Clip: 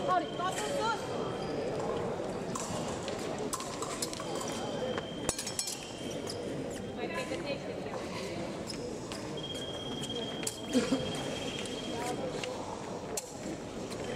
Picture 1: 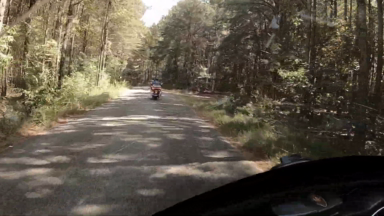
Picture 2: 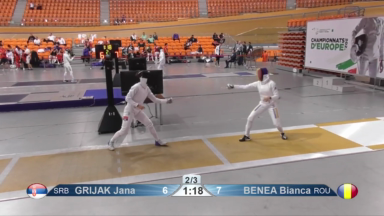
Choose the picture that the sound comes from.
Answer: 2